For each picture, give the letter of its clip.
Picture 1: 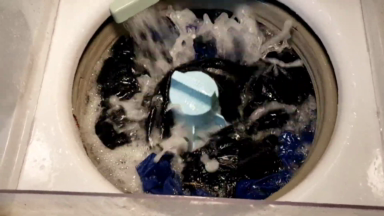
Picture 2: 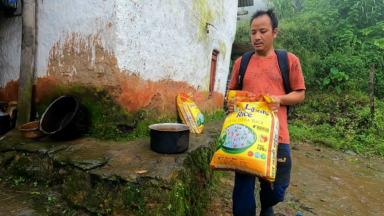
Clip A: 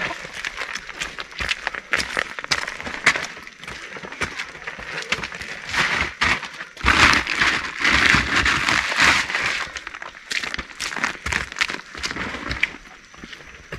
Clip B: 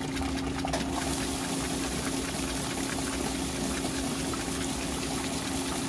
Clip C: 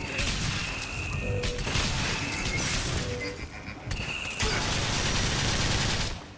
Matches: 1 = B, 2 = A